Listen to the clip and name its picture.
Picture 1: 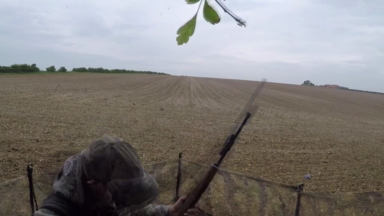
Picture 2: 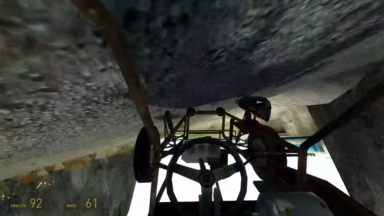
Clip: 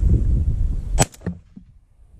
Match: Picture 1